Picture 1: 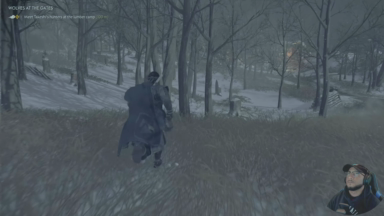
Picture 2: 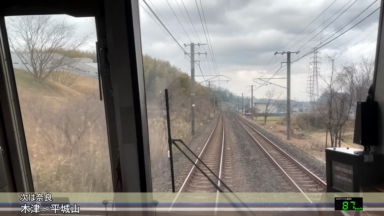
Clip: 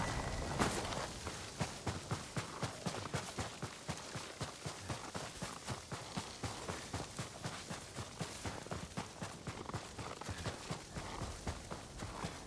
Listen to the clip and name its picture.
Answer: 1